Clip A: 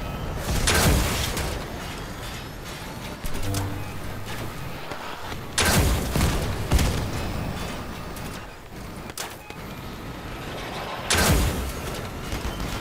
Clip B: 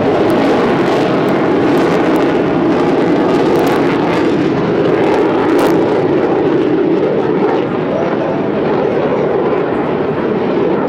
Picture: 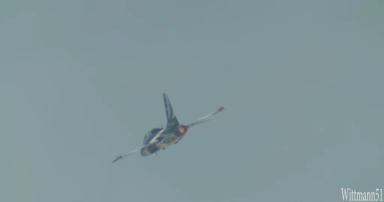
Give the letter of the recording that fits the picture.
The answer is B